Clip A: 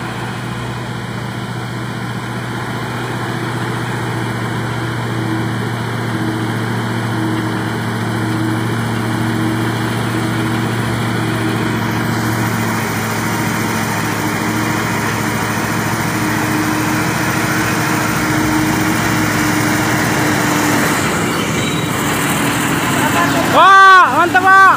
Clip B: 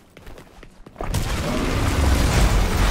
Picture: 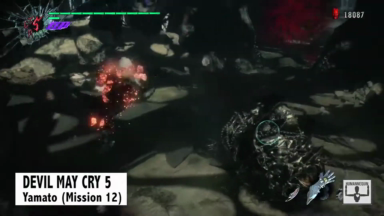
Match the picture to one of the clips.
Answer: B